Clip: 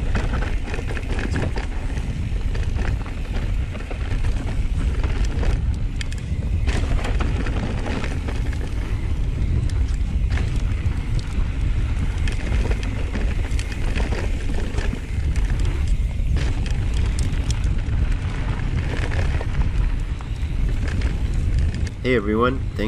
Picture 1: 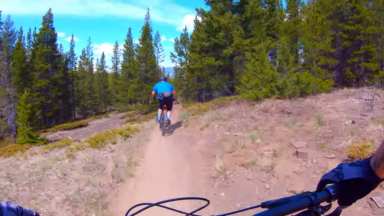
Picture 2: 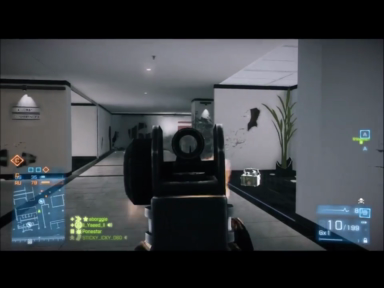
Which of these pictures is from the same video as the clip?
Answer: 1